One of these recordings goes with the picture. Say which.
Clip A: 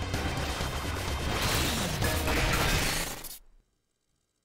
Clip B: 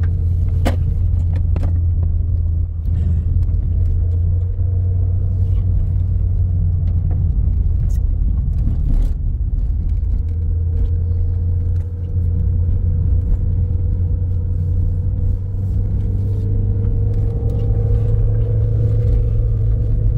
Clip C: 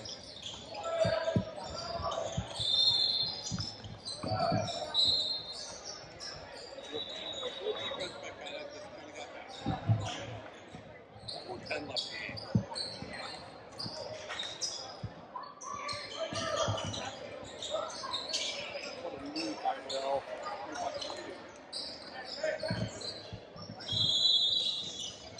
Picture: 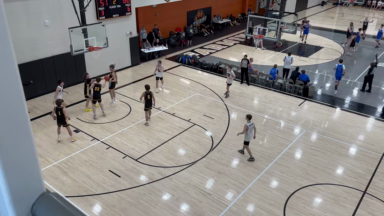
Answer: C